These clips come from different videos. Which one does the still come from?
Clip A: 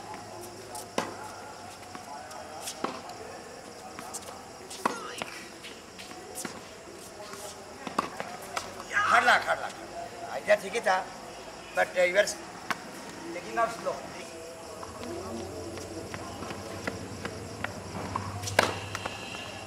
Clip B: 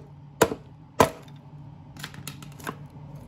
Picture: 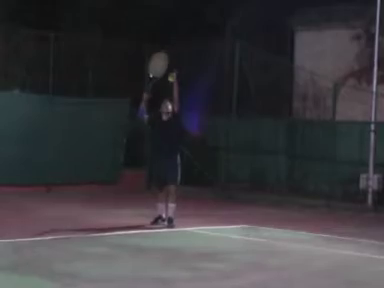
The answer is A